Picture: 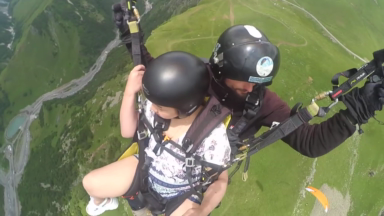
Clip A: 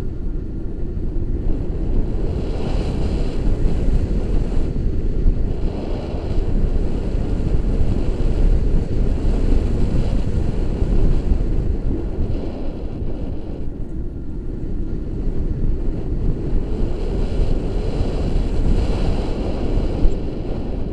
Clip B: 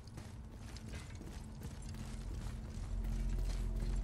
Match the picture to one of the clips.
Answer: A